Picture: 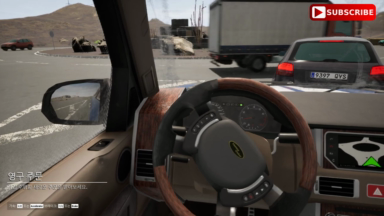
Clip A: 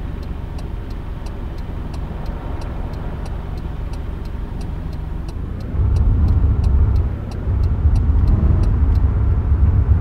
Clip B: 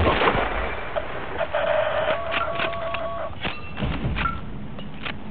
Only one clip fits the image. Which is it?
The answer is A